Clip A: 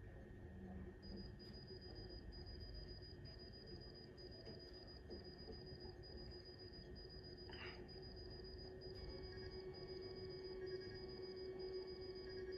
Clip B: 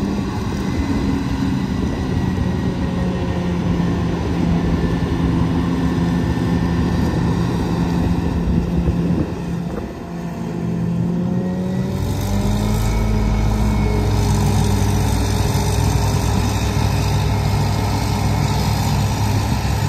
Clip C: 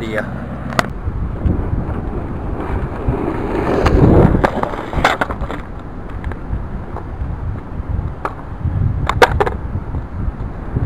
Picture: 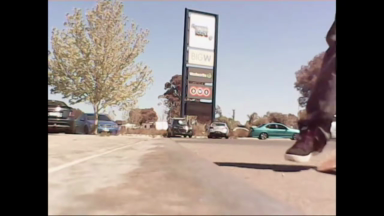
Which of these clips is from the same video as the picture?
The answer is C